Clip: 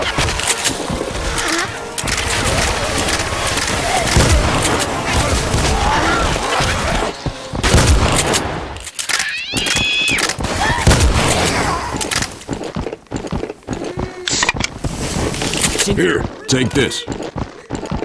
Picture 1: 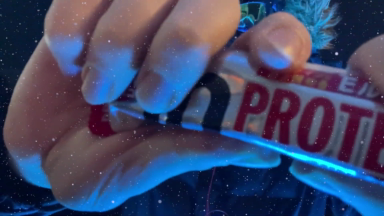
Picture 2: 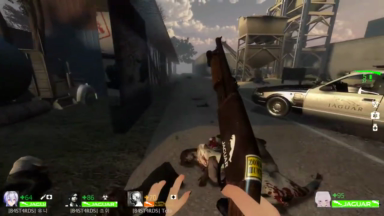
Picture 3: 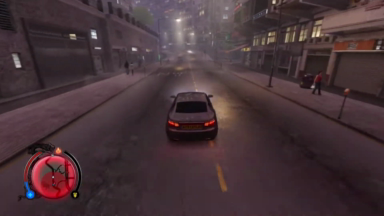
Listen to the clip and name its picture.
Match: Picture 2